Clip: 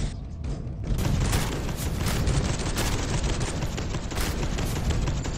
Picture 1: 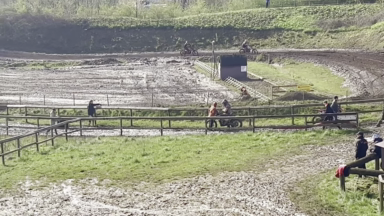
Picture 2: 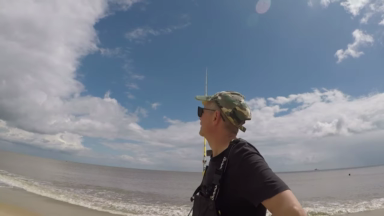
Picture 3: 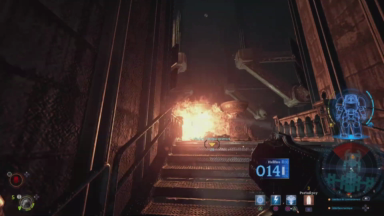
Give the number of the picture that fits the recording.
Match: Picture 3